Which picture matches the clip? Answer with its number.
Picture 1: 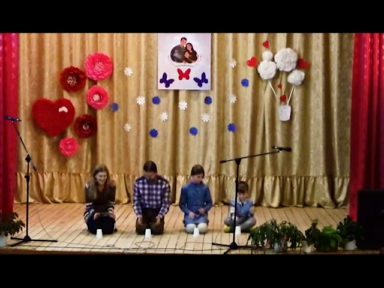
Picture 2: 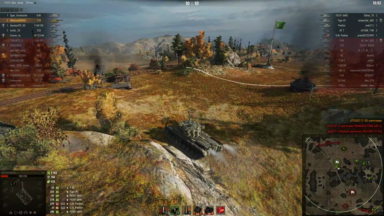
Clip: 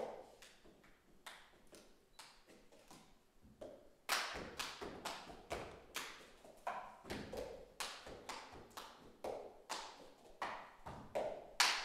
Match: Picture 1